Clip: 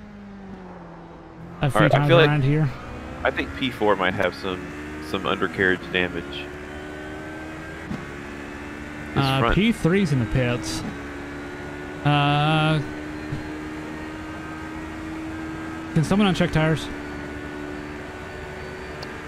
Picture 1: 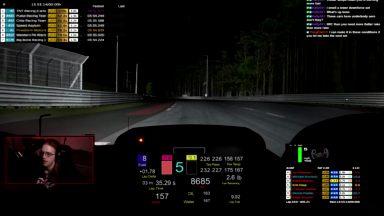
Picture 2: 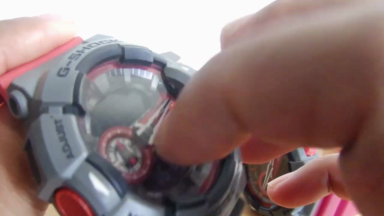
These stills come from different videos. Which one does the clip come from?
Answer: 1